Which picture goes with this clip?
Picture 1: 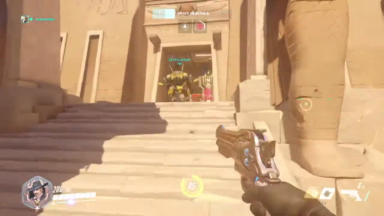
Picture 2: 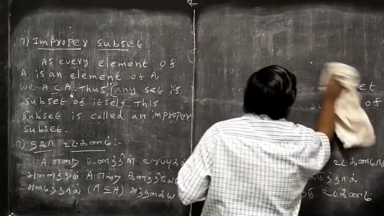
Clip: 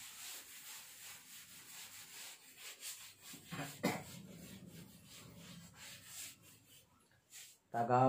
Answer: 2